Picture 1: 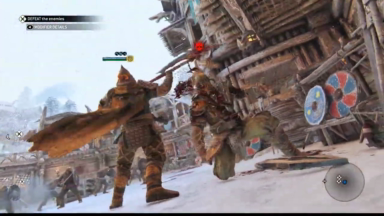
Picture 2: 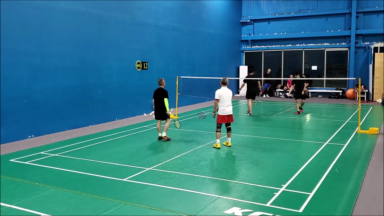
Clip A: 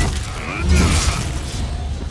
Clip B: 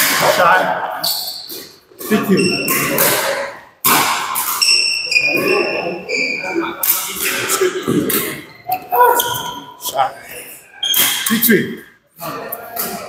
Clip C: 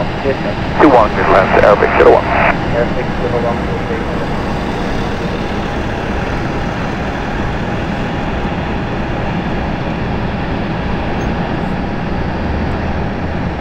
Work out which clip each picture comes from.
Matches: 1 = A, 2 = B